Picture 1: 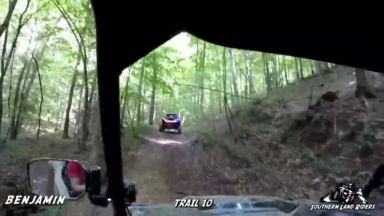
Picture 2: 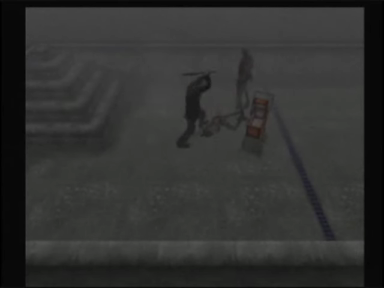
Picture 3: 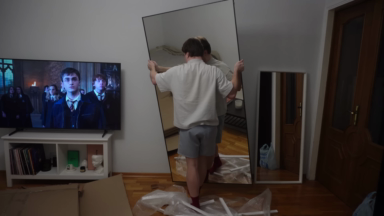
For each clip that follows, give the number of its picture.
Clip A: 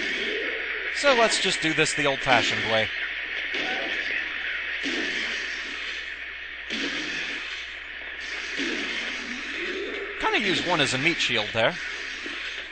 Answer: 2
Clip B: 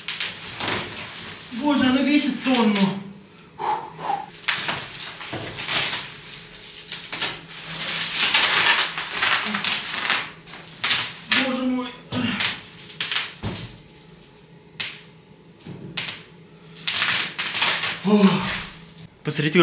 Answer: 3